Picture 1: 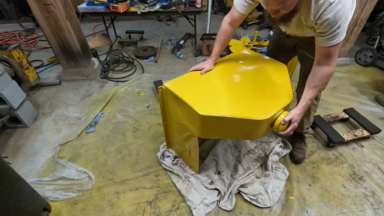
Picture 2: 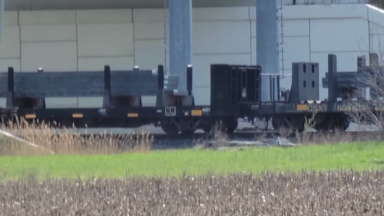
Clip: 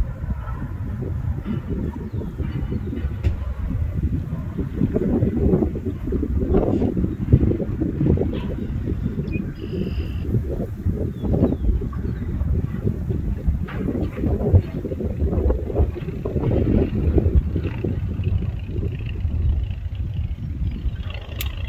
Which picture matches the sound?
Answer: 2